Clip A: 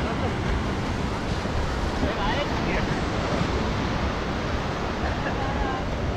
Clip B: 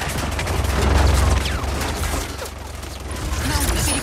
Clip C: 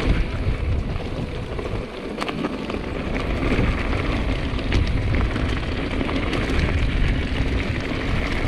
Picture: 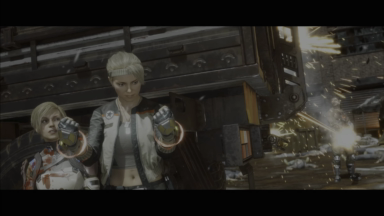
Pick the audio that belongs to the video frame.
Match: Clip B